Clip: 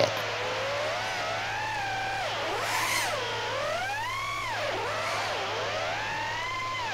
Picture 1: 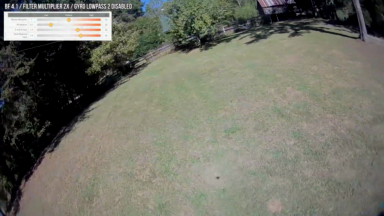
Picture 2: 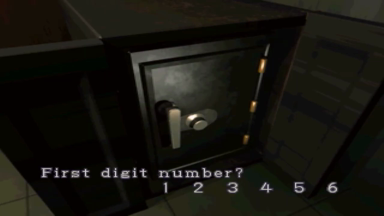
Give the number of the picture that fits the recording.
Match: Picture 1